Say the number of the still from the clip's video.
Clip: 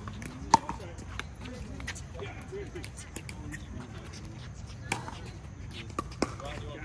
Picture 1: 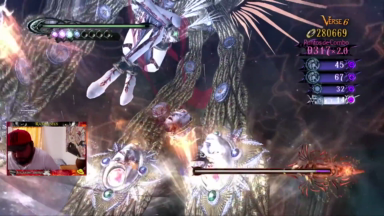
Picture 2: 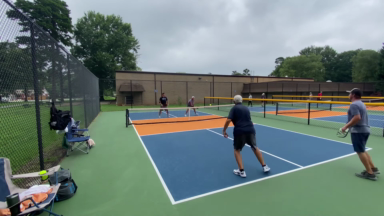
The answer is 2